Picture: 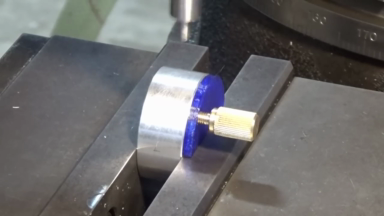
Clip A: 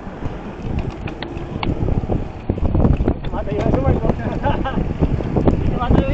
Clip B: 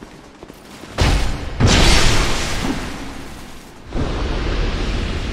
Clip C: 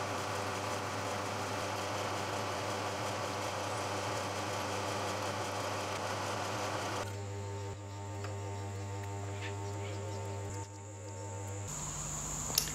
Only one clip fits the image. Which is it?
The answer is C